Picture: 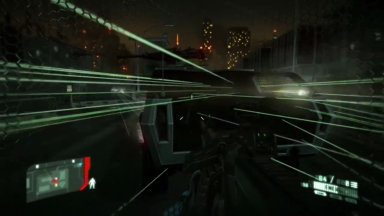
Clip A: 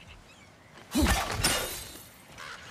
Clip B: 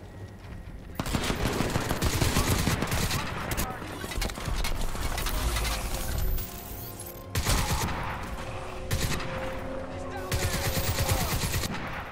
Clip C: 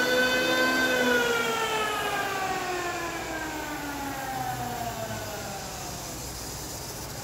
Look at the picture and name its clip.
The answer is B